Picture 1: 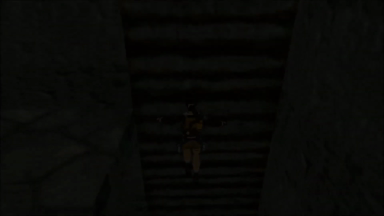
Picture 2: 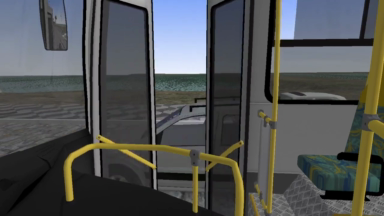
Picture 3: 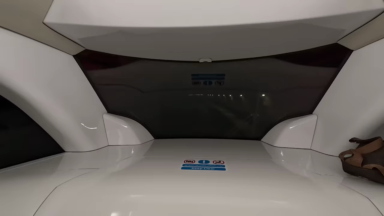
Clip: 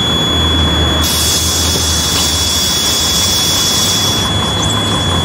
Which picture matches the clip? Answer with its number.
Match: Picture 2